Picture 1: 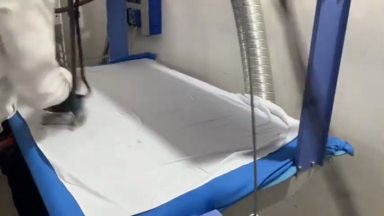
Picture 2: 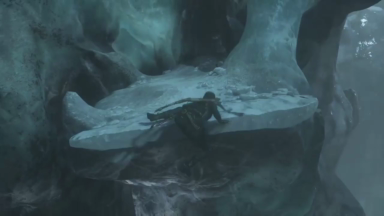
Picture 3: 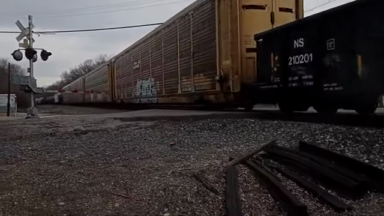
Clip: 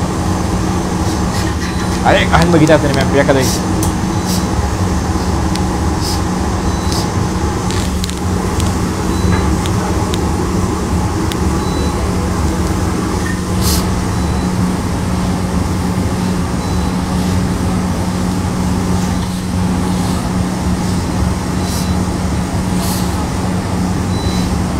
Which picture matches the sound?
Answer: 1